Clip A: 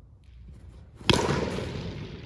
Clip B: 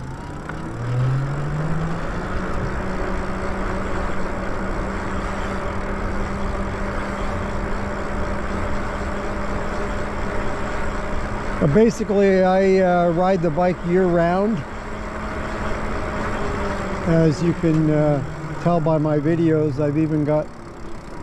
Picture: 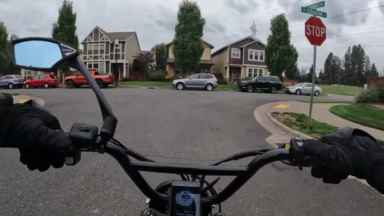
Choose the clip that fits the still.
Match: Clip B